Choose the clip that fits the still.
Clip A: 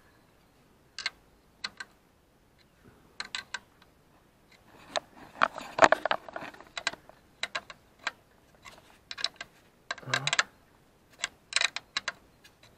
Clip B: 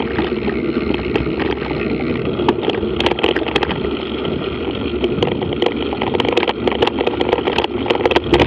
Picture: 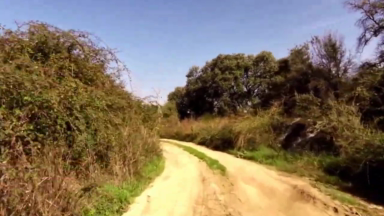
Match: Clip B